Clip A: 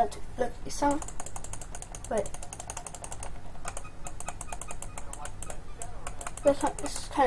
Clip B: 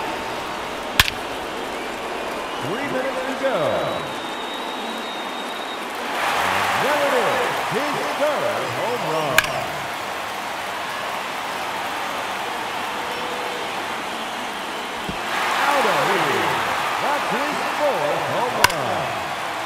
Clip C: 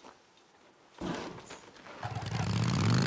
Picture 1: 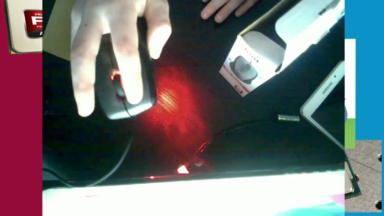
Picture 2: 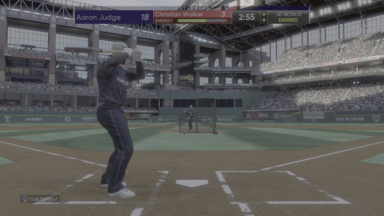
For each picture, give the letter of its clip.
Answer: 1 A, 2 B